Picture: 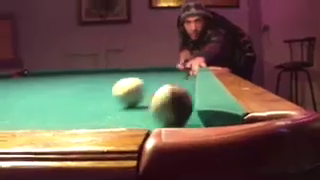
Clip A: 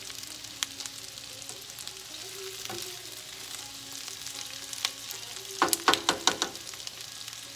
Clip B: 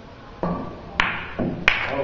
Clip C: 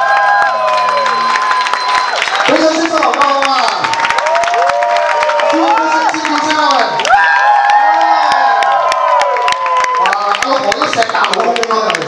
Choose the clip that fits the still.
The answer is B